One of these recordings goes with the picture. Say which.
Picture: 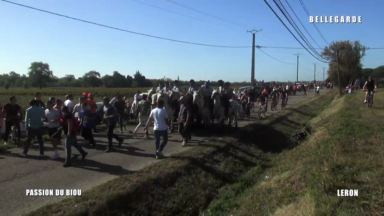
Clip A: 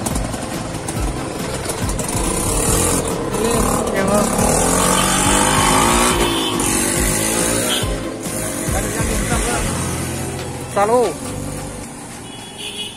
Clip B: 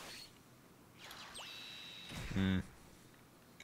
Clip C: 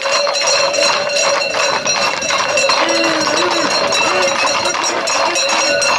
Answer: C